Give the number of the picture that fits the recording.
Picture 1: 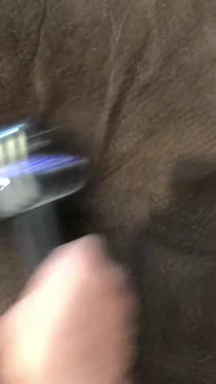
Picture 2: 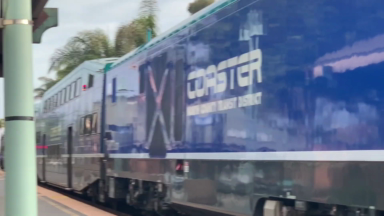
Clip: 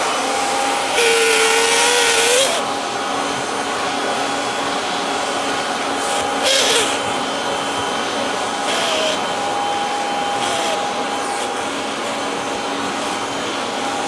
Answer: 1